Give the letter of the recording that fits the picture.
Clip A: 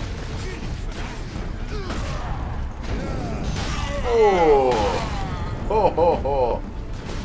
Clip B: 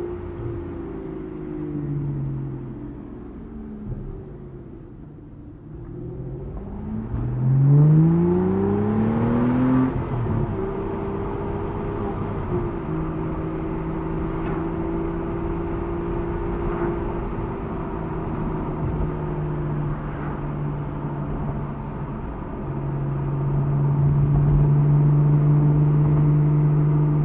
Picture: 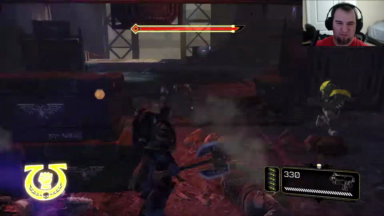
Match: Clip A